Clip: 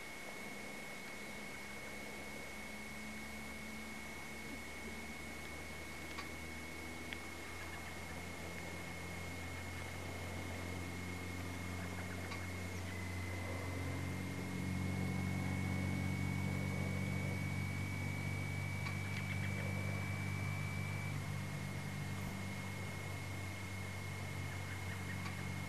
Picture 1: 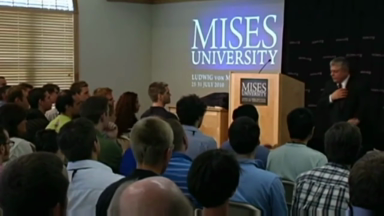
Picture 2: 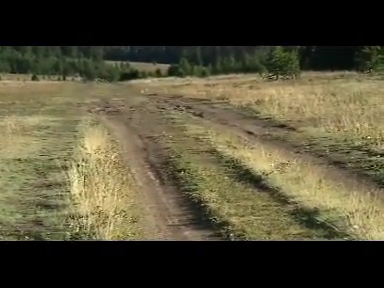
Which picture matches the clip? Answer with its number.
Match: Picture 2